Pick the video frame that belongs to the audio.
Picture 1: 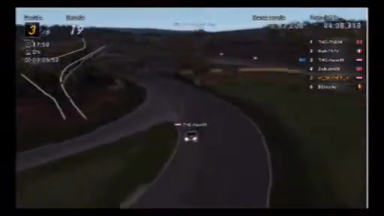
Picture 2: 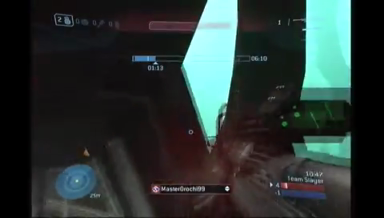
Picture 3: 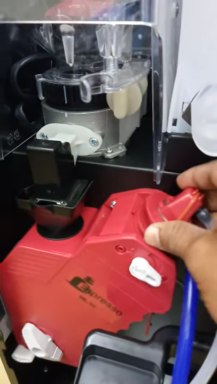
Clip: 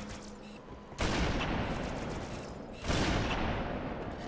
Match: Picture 2